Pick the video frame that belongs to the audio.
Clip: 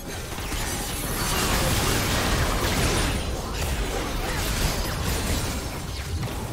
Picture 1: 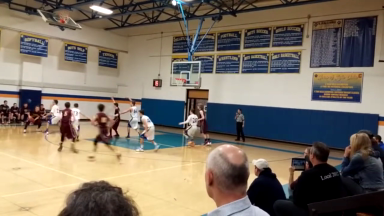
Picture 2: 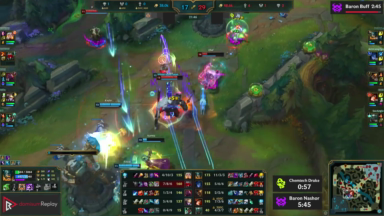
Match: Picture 2